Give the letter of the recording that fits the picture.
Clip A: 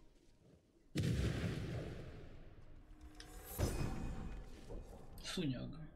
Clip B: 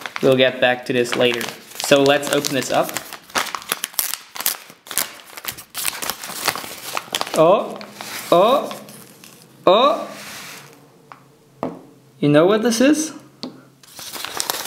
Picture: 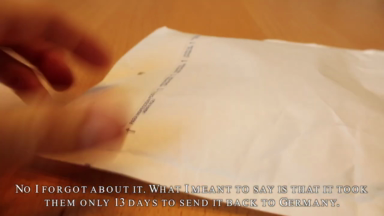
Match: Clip B